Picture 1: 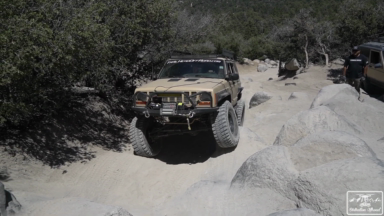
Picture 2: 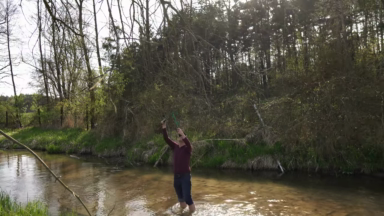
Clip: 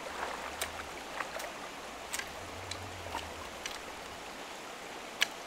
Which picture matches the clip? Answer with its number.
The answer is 2